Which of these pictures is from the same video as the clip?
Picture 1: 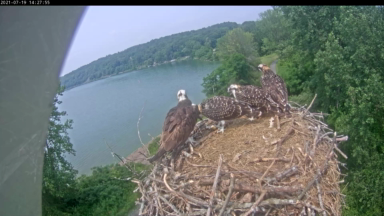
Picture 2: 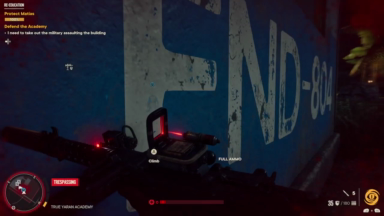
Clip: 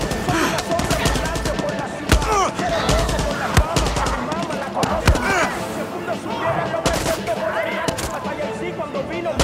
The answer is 2